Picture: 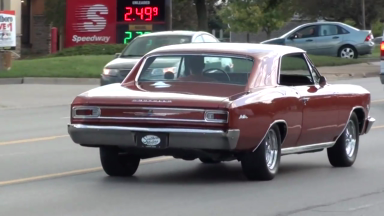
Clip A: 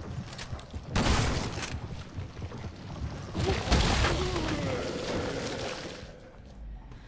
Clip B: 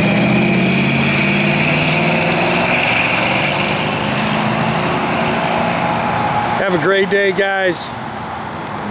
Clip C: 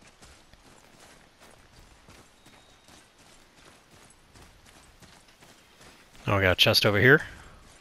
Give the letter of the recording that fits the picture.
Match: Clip B